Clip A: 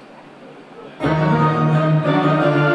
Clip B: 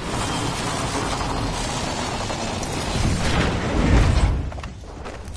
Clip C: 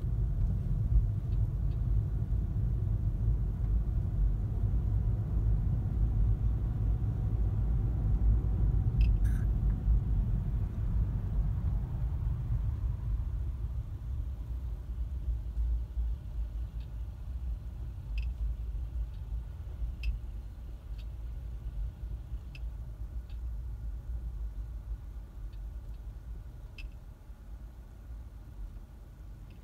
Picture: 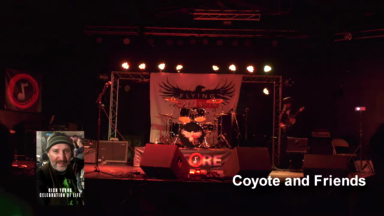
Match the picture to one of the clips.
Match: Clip A